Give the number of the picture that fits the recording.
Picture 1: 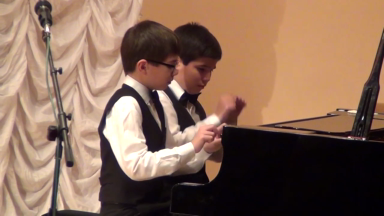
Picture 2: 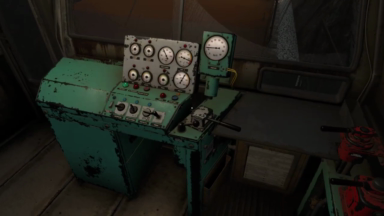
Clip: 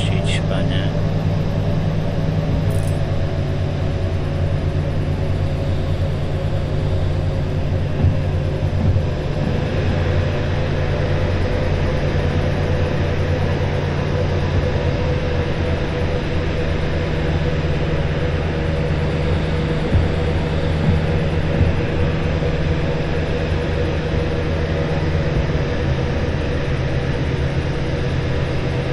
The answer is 2